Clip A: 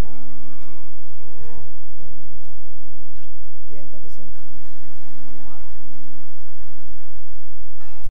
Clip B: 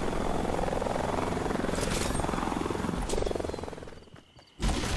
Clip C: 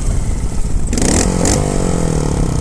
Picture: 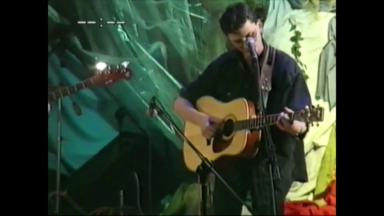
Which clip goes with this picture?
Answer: A